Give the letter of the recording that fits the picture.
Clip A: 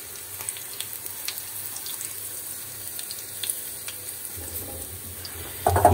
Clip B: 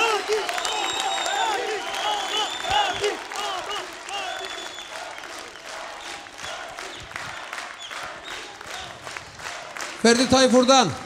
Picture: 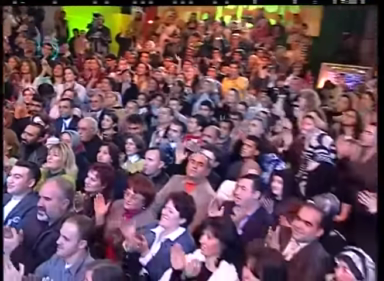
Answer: B